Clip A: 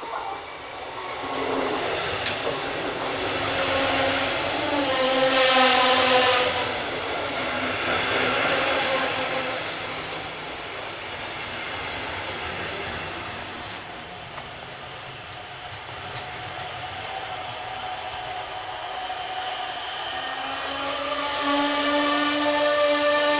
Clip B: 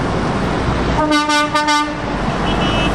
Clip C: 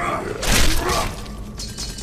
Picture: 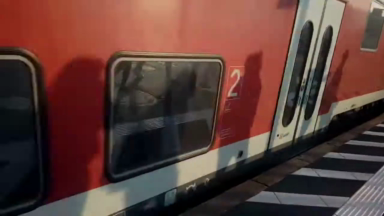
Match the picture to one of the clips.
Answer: A